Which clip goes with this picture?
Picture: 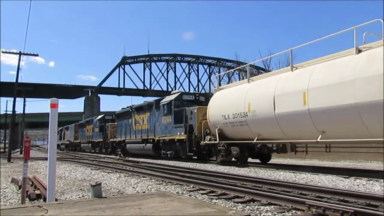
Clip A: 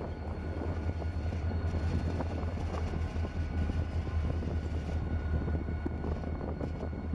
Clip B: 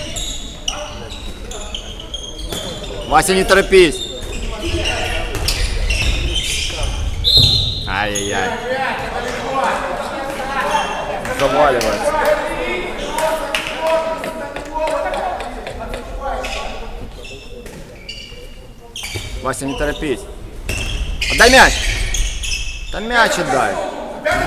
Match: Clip A